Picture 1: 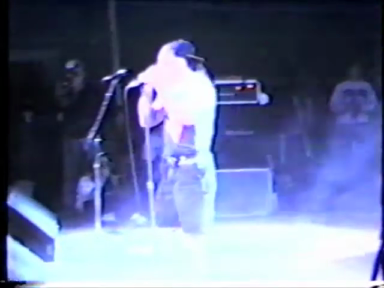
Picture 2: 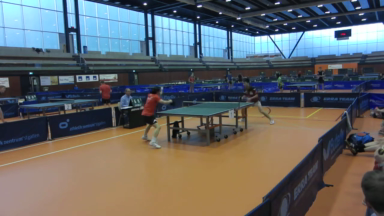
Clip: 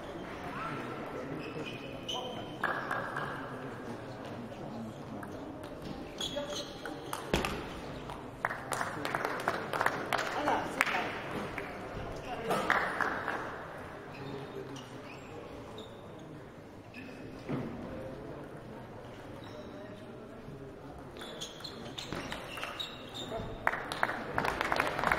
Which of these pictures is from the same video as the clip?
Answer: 2